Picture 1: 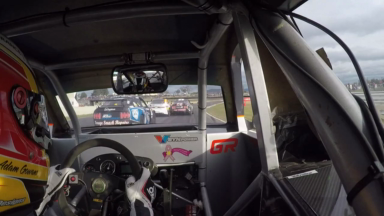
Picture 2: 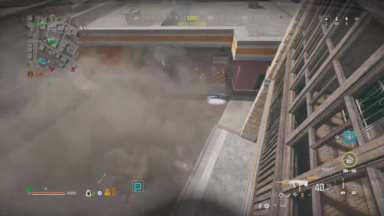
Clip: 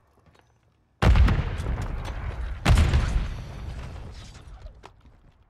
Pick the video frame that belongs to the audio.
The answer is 2